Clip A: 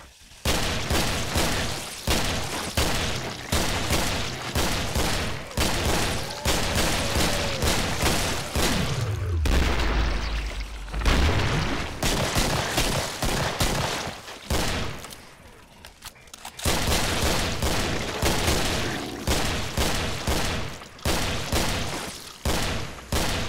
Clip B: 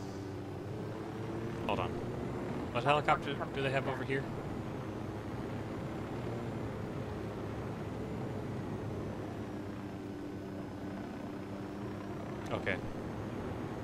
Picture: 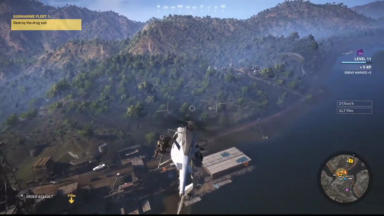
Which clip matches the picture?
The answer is B